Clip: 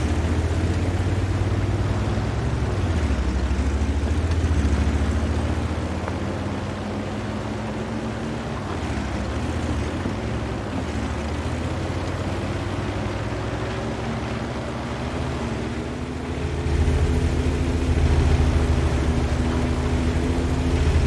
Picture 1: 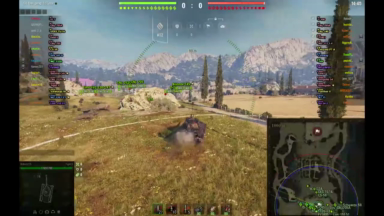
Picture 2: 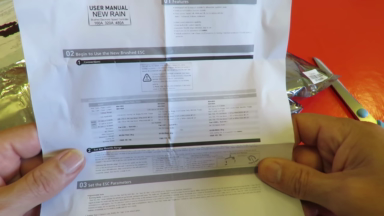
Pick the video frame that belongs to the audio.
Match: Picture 1